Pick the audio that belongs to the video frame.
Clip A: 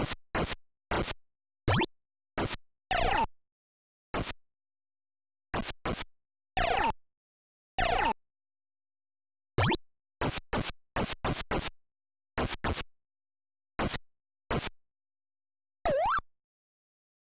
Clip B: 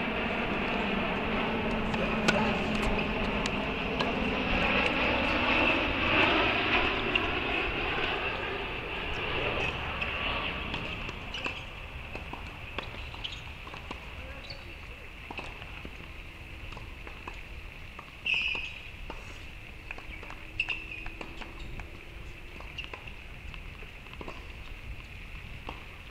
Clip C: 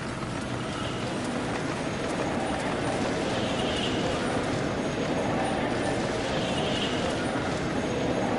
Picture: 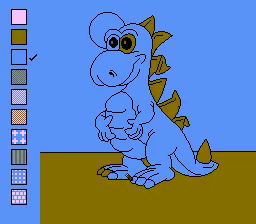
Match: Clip A